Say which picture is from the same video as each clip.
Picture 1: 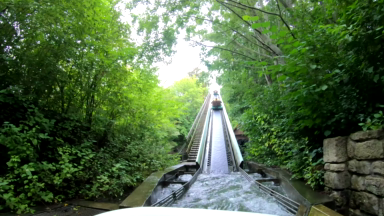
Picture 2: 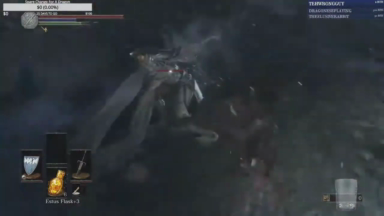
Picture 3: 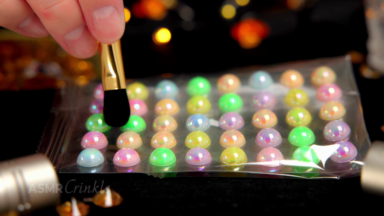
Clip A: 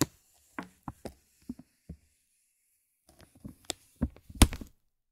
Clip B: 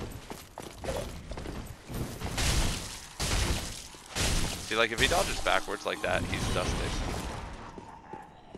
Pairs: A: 3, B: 2